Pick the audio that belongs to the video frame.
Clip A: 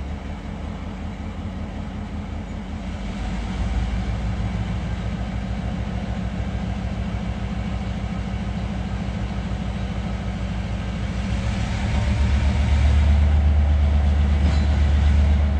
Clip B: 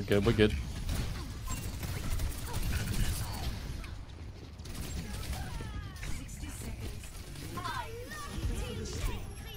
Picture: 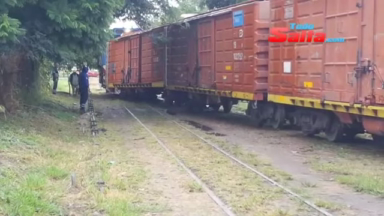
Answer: A